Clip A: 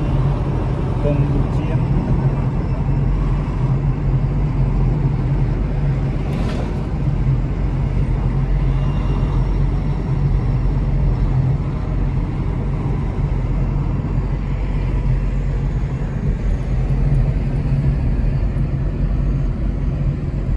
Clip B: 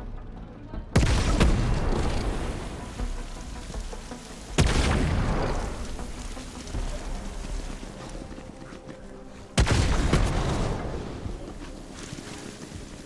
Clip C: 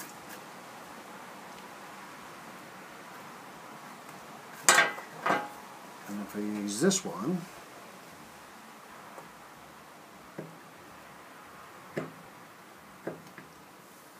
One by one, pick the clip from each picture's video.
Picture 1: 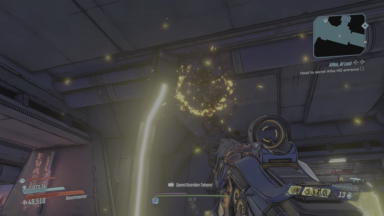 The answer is B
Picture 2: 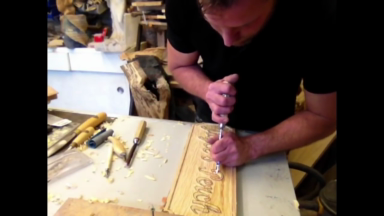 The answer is C